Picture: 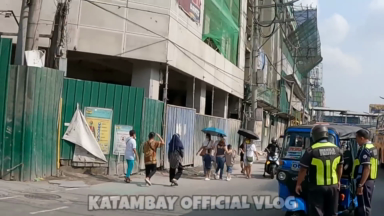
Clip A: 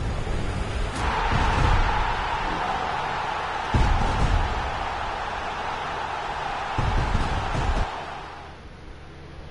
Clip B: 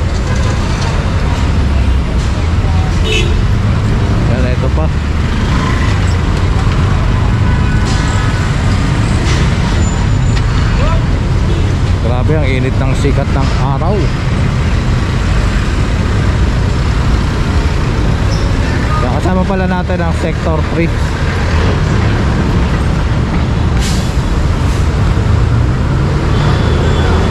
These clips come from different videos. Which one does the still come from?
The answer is B